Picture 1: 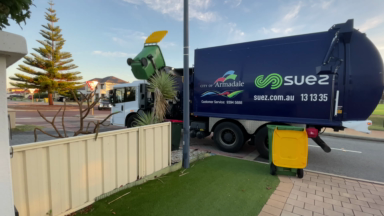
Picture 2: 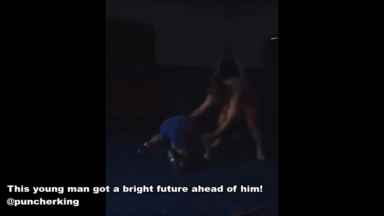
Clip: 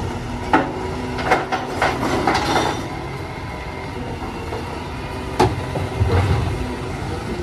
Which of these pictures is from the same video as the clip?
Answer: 1